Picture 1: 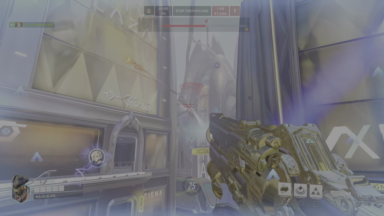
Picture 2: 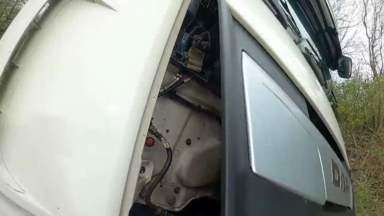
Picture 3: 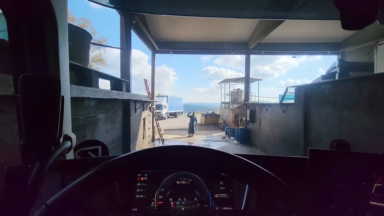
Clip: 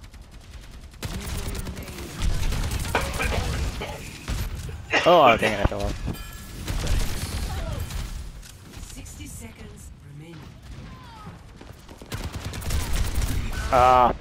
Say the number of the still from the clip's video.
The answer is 1